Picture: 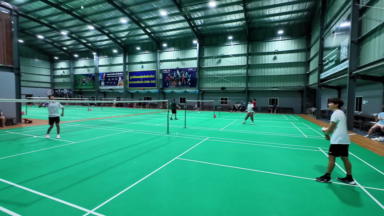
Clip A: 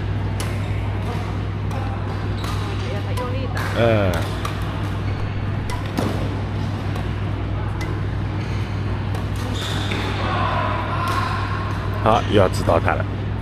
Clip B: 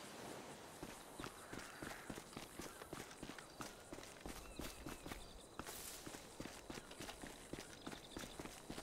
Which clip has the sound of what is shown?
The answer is A